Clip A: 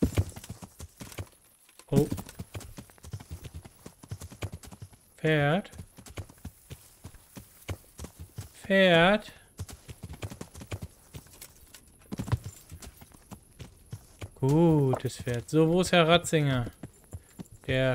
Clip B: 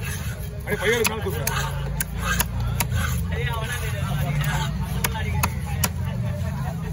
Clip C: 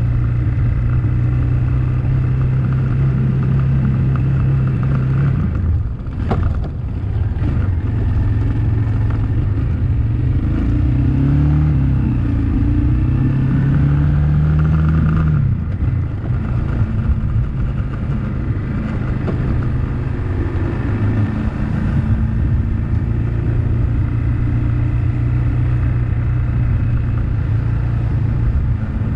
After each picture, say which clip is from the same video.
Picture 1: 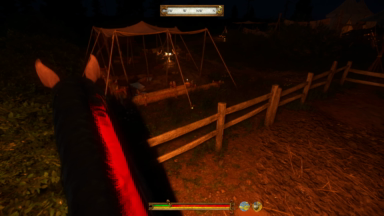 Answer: A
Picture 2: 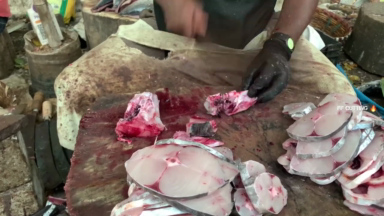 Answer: B